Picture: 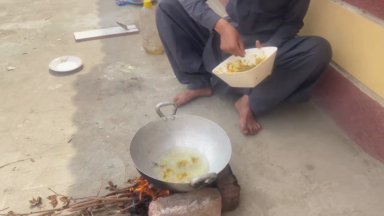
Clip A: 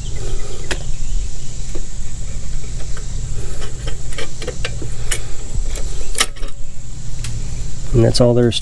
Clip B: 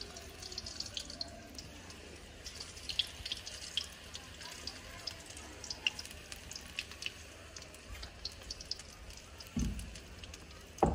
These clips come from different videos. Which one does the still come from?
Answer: B